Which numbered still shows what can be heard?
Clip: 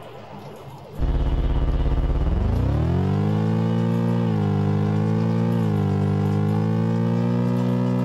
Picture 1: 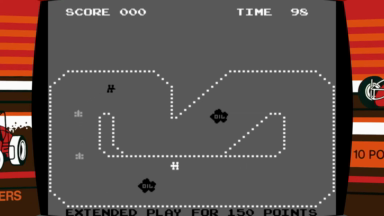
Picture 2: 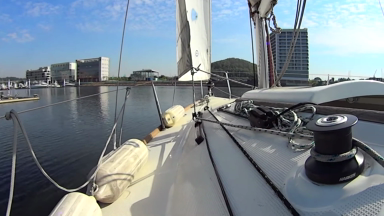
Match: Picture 1